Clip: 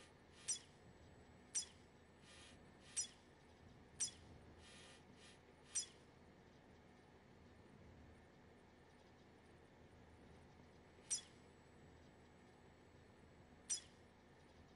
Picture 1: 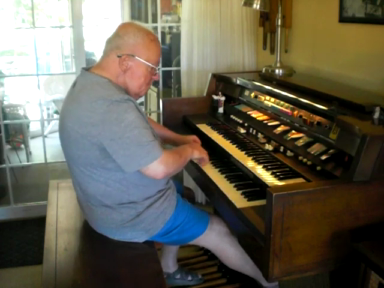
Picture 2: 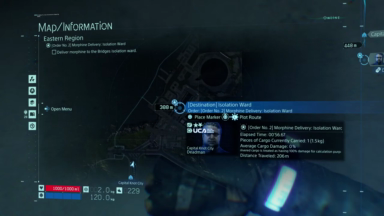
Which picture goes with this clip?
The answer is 2